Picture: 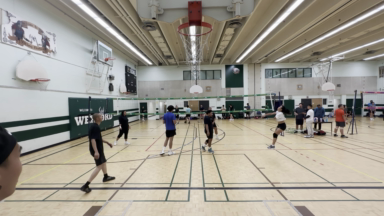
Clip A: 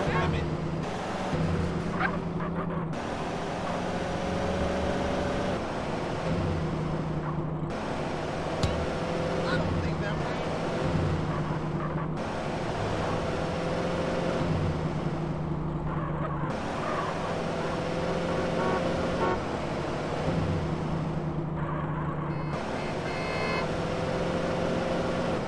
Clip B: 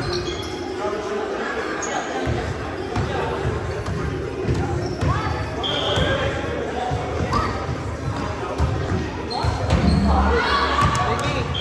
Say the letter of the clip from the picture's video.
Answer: B